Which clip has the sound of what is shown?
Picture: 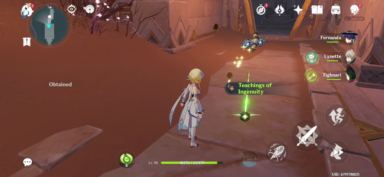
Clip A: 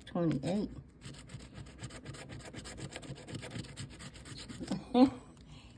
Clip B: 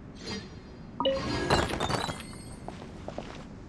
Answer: B